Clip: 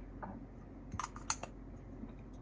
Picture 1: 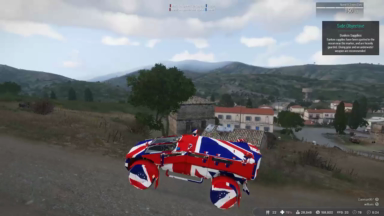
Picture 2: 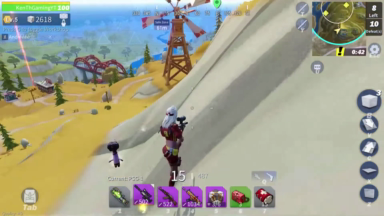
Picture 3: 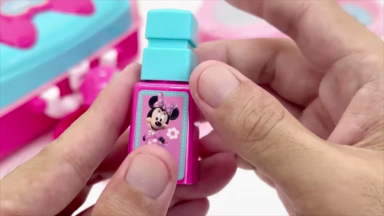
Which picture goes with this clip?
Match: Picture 3